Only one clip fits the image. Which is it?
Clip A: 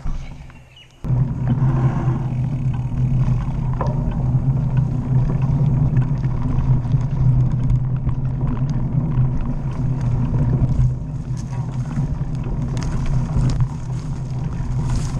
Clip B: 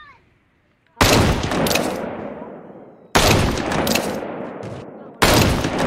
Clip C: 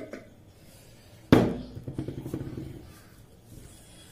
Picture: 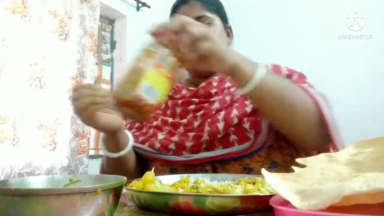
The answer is C